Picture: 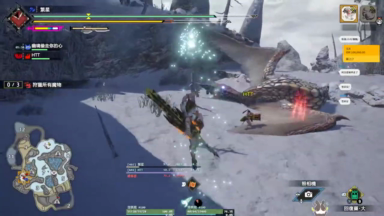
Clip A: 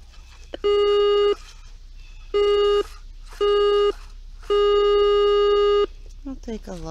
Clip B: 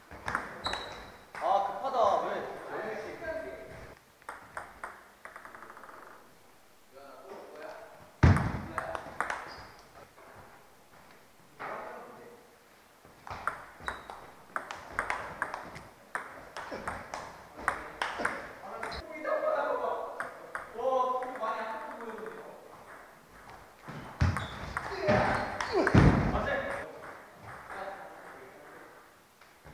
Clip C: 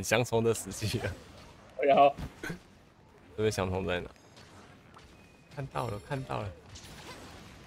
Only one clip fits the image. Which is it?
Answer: C